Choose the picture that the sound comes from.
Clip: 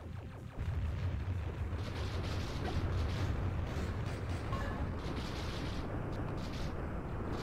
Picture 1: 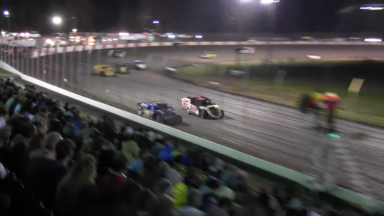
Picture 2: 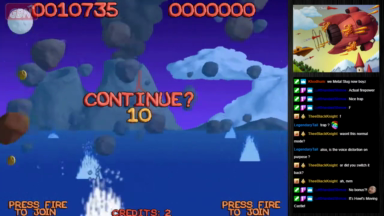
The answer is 2